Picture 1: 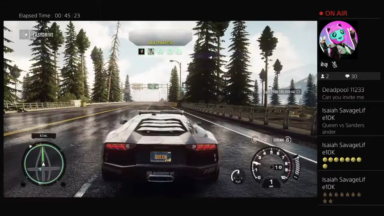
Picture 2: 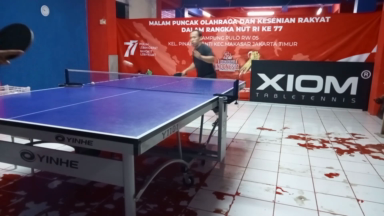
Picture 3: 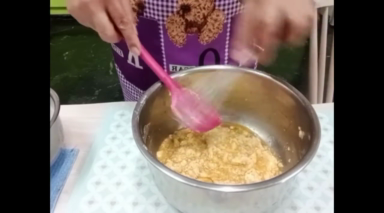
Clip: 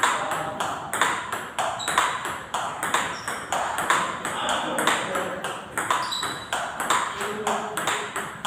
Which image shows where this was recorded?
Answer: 2